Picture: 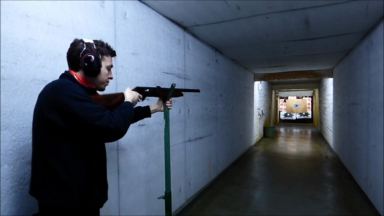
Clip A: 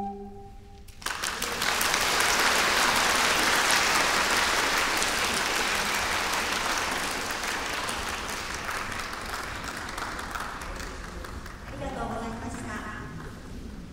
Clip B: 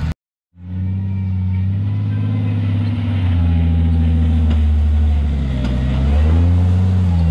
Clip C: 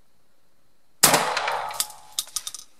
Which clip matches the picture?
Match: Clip C